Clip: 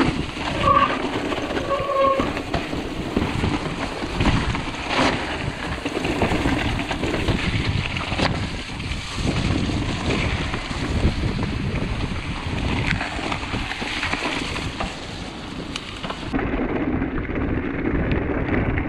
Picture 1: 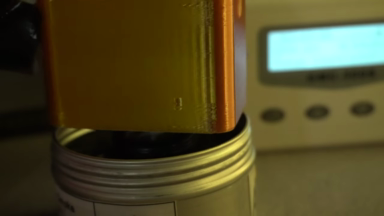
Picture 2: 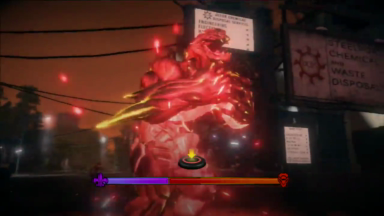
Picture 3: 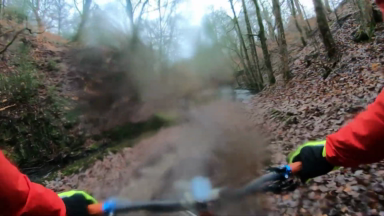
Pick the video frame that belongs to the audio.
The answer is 3